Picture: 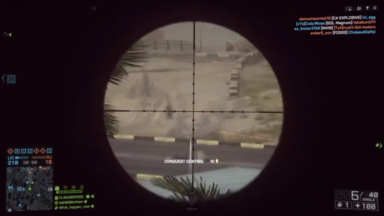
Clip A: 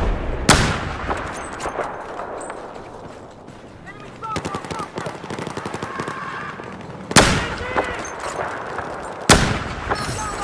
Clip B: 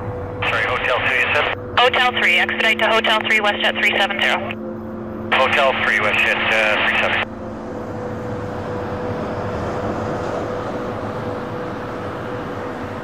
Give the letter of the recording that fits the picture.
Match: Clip A